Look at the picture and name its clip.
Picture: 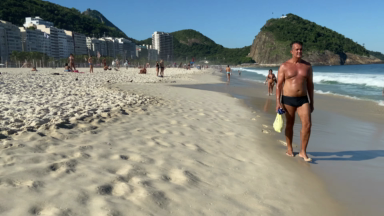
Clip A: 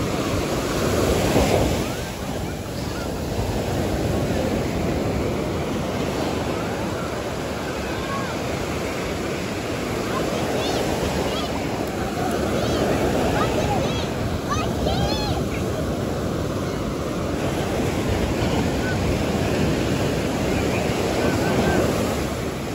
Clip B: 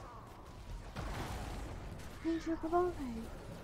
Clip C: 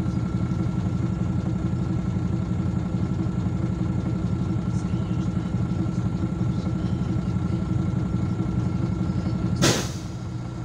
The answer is A